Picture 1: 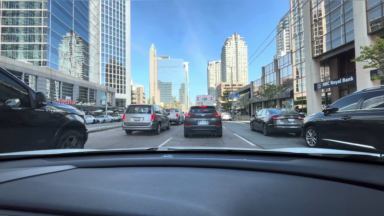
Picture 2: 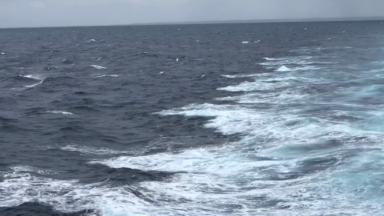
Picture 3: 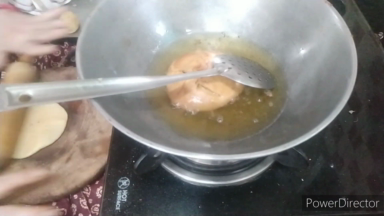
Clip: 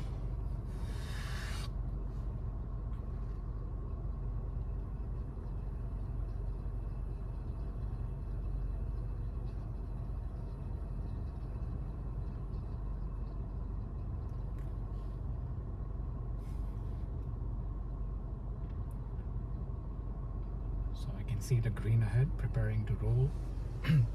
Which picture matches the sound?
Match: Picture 1